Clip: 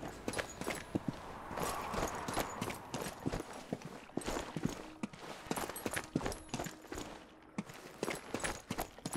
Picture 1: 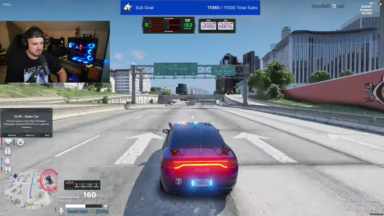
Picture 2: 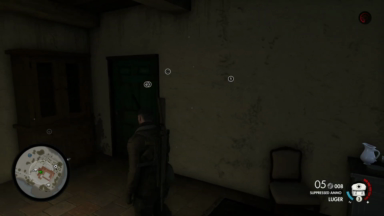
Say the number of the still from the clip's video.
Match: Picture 2